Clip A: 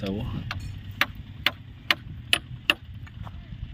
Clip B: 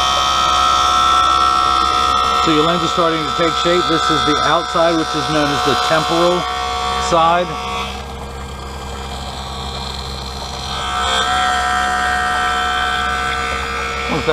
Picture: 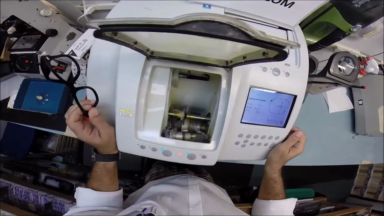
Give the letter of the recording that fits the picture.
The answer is B